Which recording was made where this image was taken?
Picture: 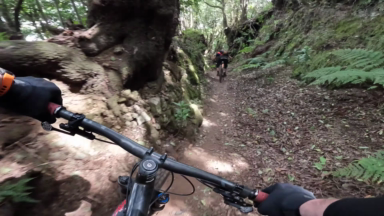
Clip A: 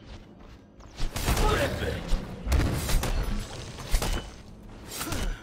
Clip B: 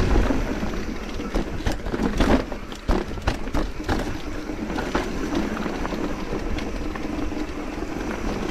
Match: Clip B